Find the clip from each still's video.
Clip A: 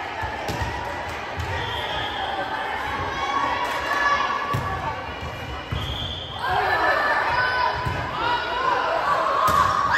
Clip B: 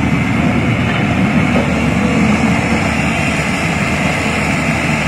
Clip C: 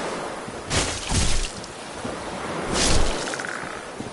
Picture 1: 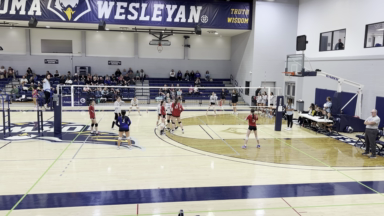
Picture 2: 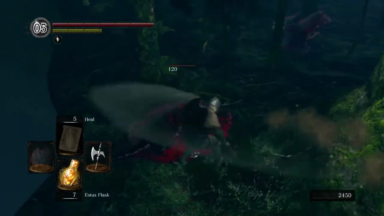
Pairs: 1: A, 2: C